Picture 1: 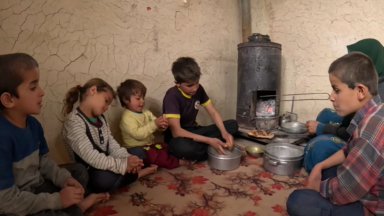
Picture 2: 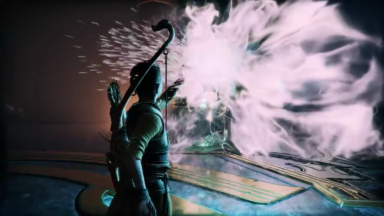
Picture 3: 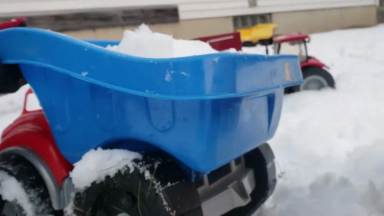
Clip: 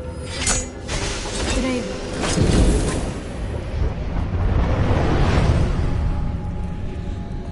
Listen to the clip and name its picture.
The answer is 2